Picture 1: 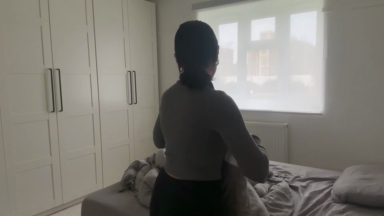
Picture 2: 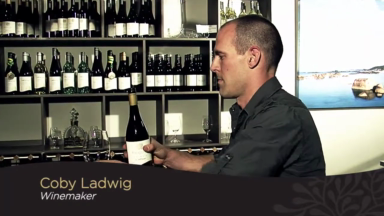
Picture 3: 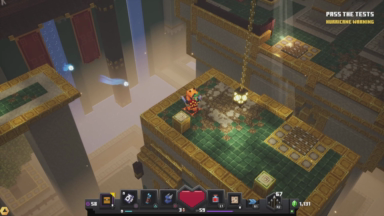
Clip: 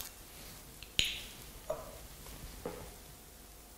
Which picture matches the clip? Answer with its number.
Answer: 2